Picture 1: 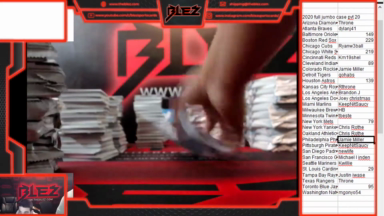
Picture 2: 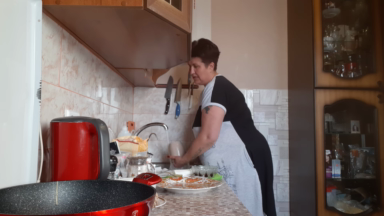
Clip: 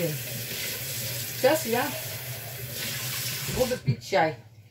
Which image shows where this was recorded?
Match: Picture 2